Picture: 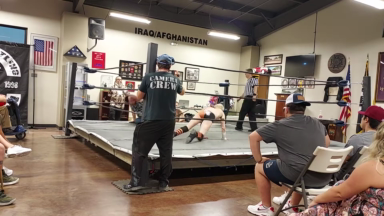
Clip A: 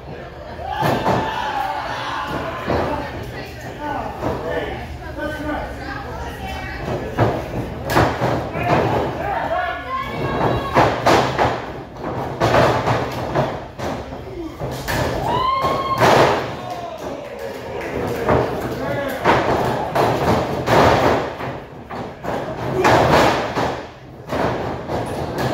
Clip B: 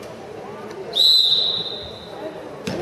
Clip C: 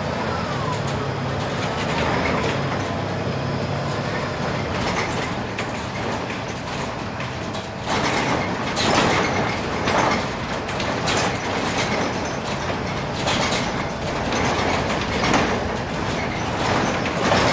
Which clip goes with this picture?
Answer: A